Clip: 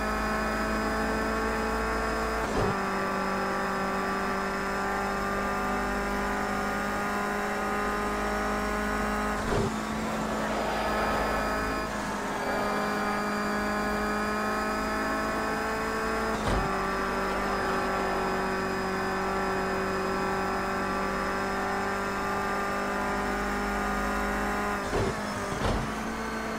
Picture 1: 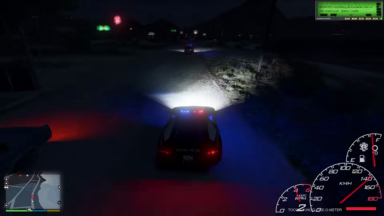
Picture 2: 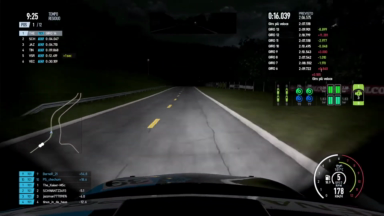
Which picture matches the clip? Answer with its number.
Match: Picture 2